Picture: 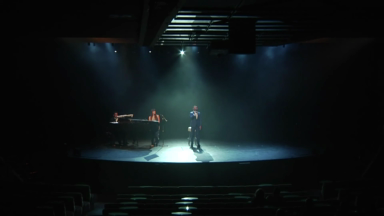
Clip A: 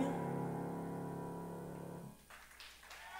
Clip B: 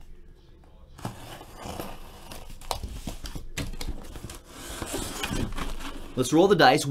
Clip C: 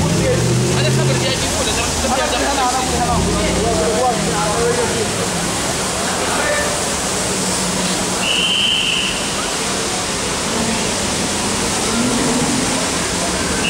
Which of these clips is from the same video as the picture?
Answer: A